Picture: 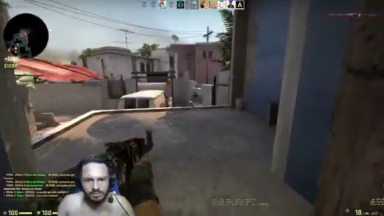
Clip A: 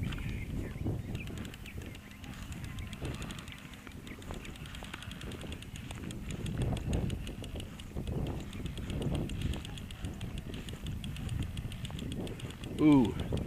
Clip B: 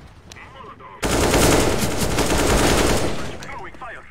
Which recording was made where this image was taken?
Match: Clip B